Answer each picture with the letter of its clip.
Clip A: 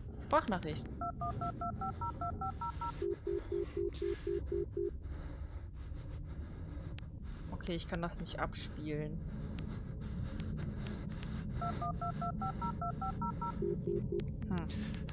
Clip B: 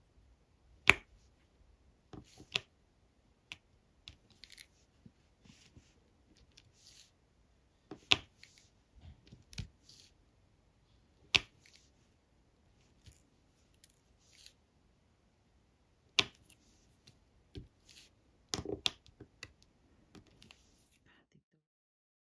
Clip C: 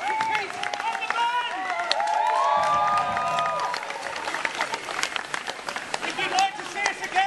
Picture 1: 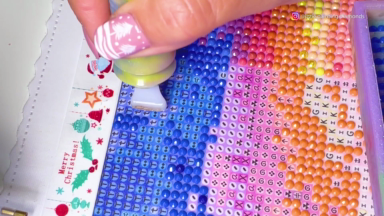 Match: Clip B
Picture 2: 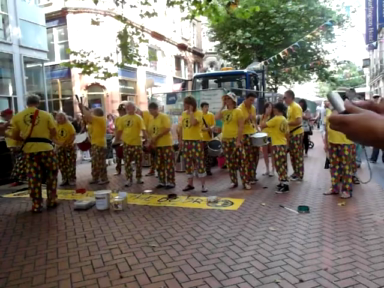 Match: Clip C